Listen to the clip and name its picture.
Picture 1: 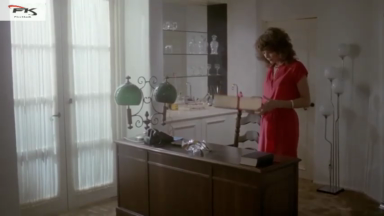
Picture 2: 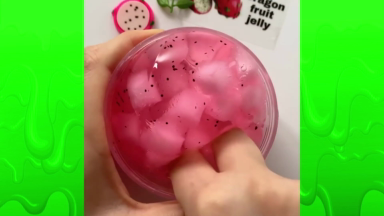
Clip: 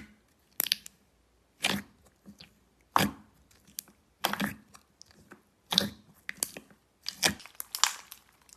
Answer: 2